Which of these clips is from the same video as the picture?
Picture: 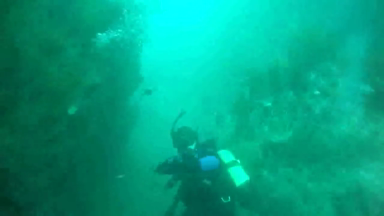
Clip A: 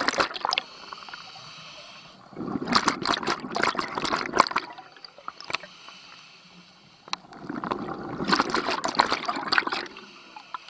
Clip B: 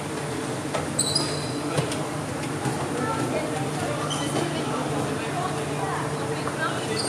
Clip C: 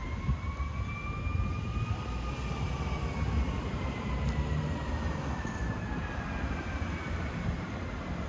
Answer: A